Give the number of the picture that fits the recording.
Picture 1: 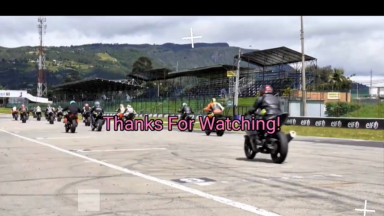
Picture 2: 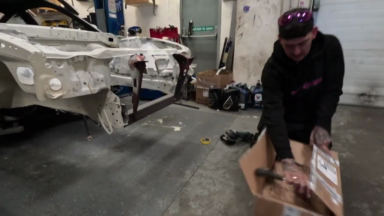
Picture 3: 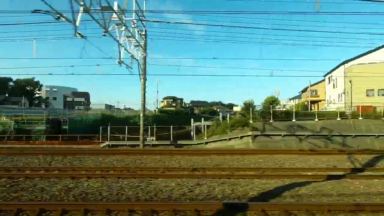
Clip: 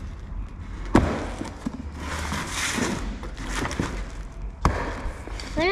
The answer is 2